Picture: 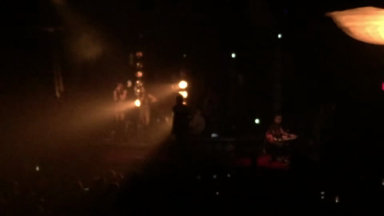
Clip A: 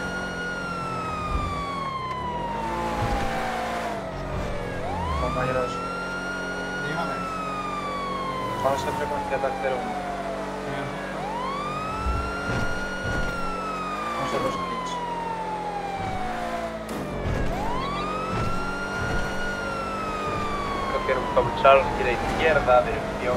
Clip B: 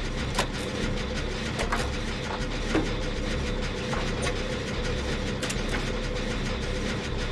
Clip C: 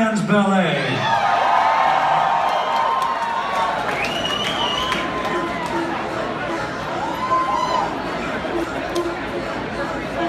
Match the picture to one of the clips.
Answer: C